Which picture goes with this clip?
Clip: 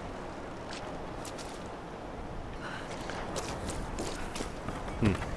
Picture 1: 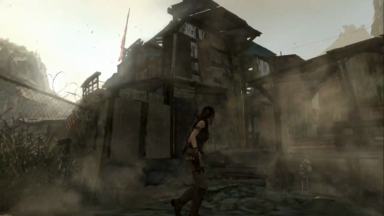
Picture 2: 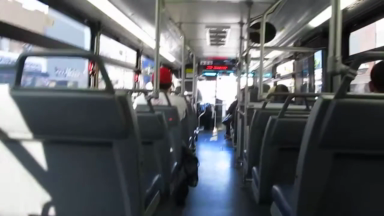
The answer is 1